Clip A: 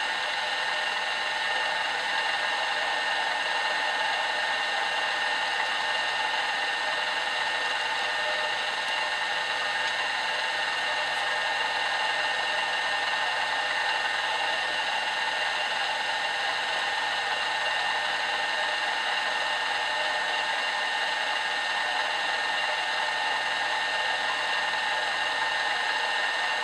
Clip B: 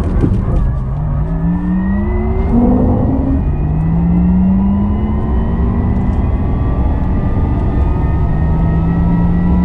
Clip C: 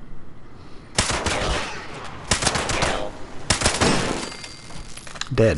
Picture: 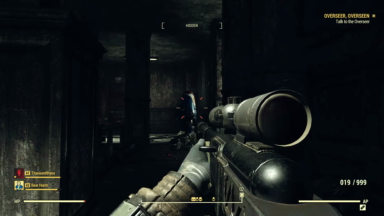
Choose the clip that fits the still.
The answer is C